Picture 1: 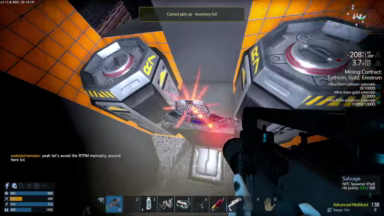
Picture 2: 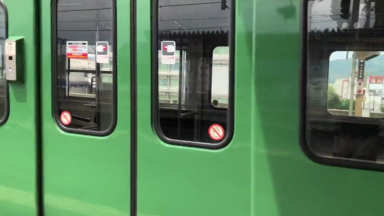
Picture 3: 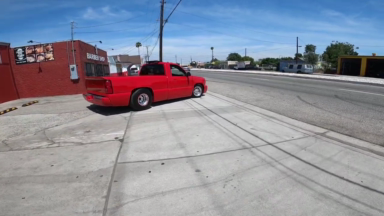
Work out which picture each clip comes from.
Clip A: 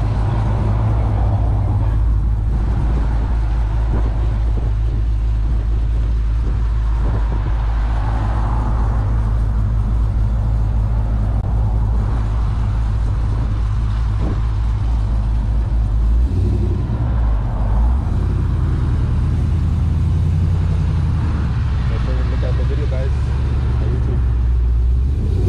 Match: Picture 3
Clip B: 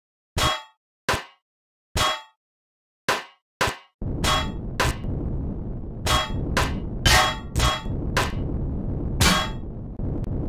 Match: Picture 1